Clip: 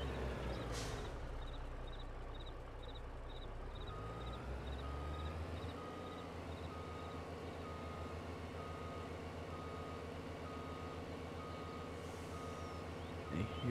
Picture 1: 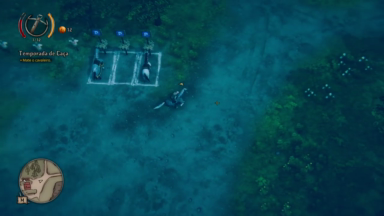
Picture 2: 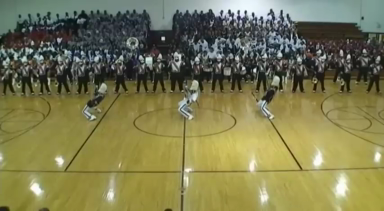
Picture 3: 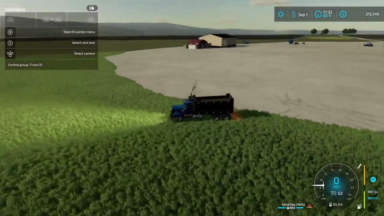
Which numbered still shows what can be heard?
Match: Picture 3